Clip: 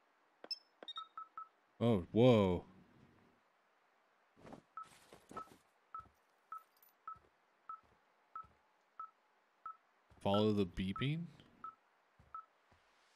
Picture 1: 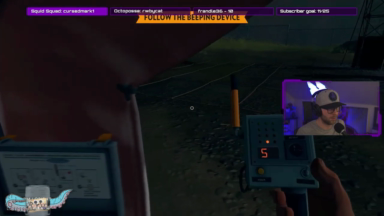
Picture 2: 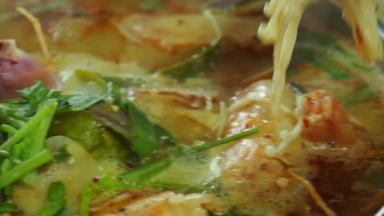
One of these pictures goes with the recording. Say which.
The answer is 1